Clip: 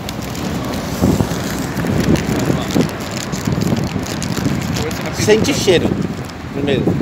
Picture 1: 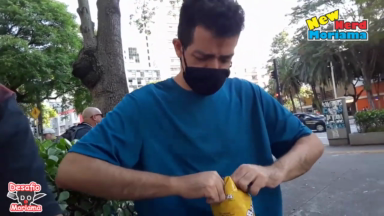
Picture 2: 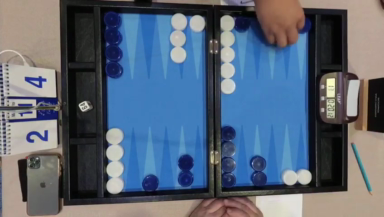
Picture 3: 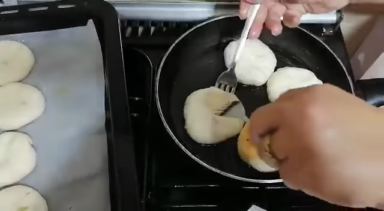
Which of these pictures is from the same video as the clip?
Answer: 1